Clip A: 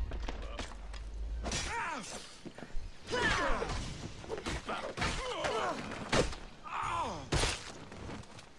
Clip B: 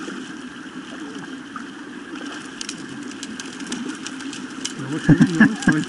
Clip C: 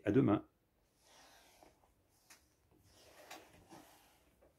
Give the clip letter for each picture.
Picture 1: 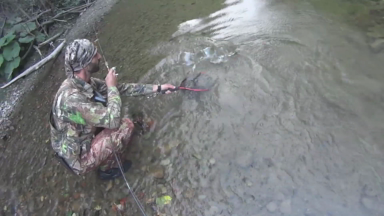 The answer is B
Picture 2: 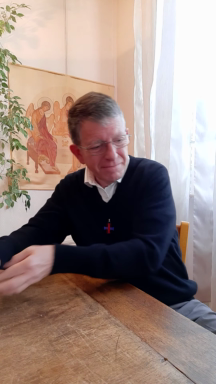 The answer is C